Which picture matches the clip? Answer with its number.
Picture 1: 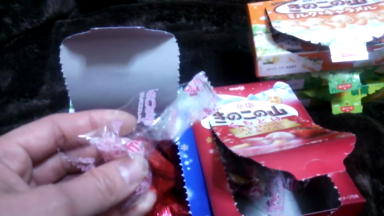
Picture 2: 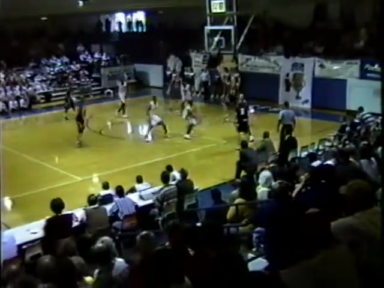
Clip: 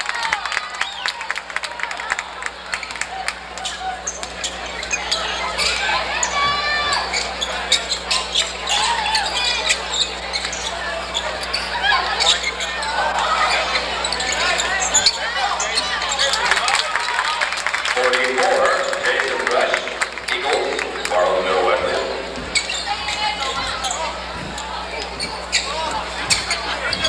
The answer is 2